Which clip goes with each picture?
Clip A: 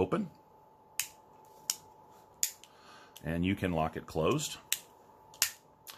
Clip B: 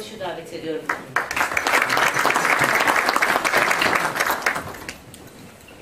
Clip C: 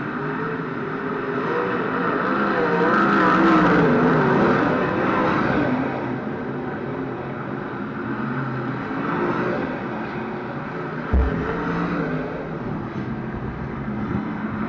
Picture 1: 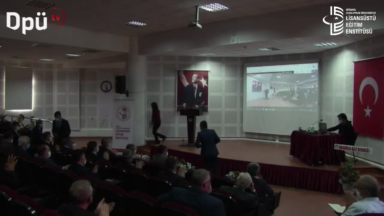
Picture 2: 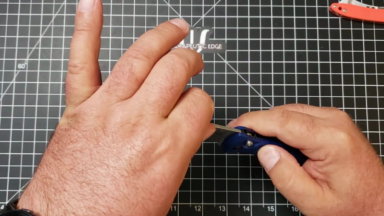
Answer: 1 B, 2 A